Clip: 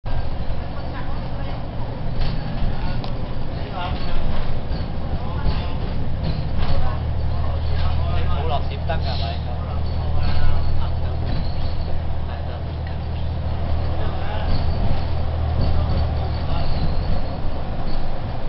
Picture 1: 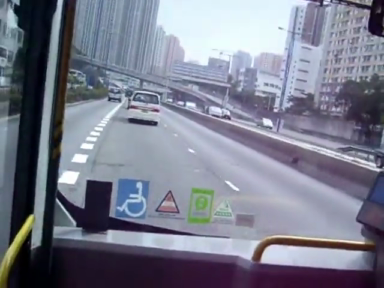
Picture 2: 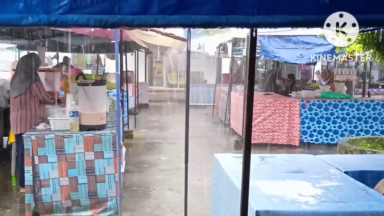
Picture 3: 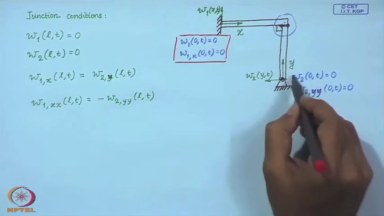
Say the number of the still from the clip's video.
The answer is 1